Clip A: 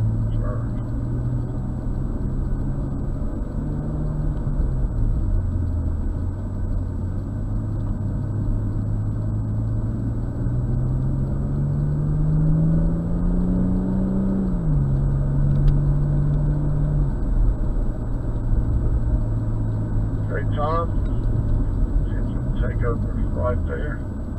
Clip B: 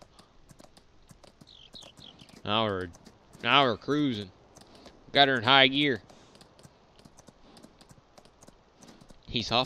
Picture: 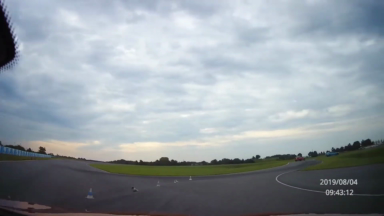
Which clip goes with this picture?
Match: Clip A